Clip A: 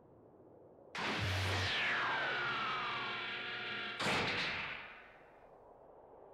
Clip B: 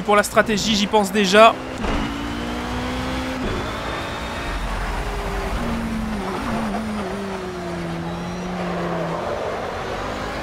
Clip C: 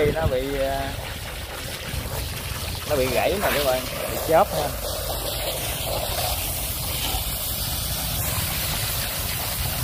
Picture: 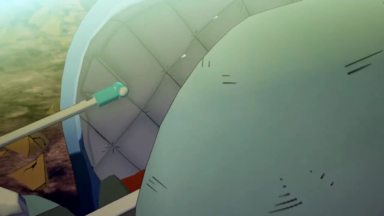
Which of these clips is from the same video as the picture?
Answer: A